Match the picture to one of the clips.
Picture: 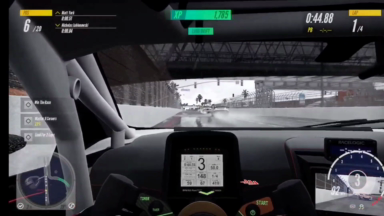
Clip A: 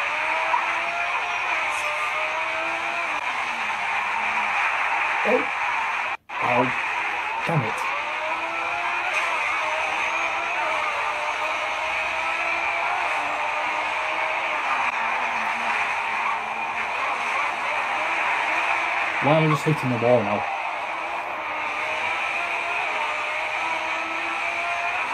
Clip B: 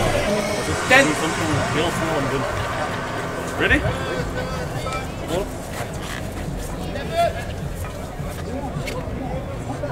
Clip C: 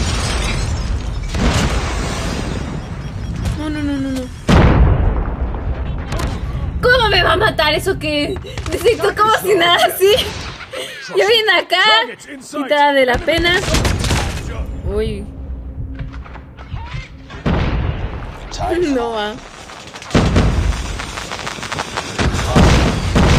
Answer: A